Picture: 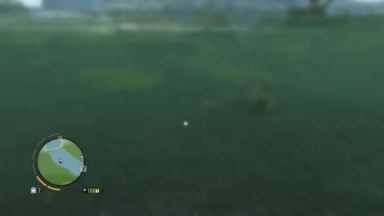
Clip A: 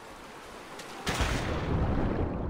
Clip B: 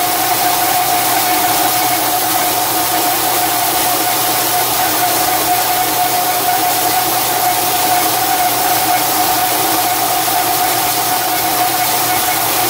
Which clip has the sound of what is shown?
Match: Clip A